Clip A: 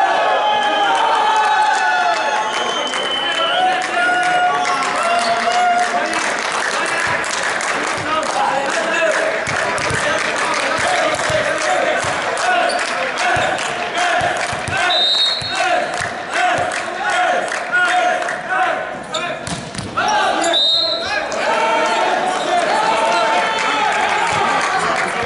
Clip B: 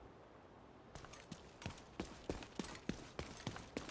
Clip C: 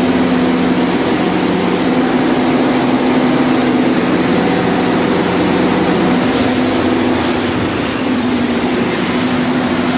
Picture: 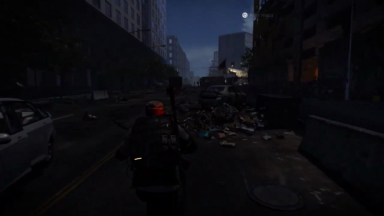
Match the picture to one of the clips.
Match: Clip B